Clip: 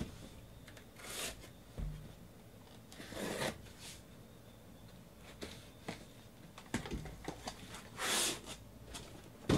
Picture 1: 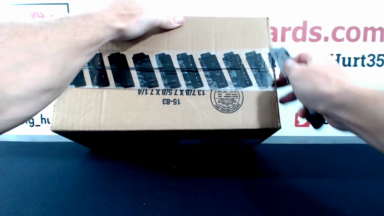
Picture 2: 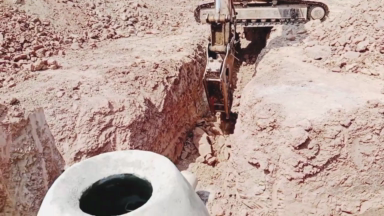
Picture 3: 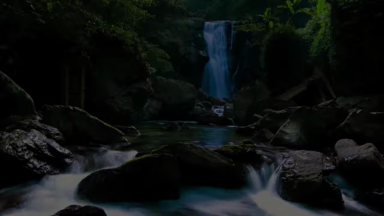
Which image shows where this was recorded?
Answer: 1